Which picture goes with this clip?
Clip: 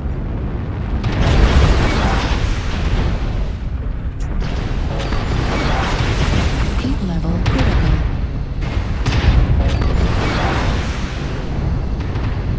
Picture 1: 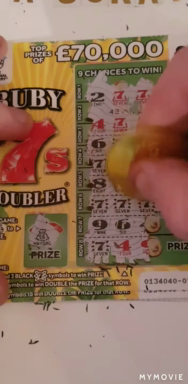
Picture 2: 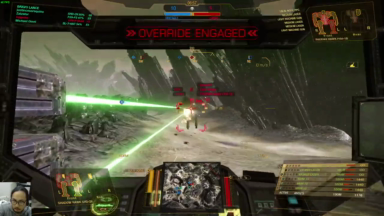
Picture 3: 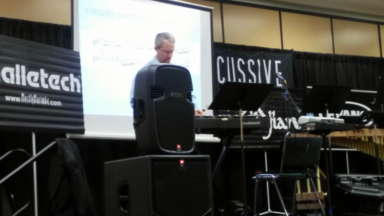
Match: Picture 2